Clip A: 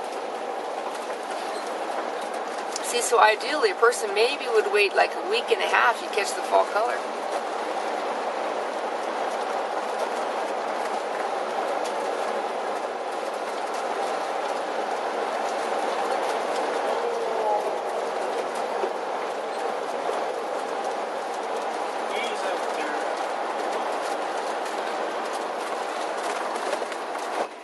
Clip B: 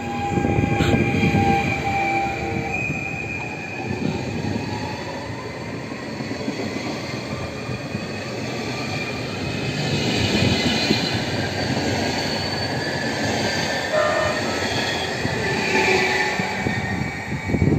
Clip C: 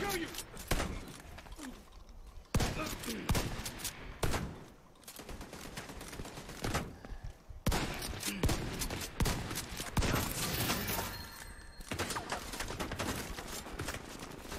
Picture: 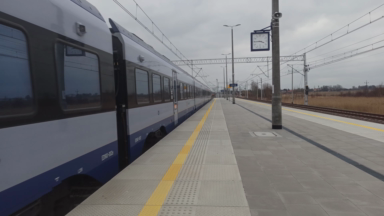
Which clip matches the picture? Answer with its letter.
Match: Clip B